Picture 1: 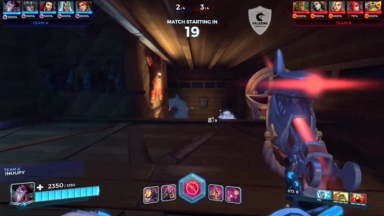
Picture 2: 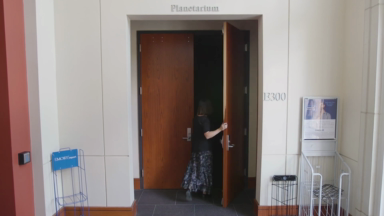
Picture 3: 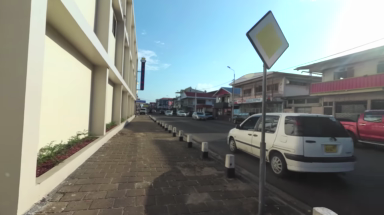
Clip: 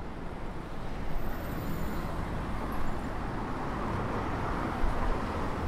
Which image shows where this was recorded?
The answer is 3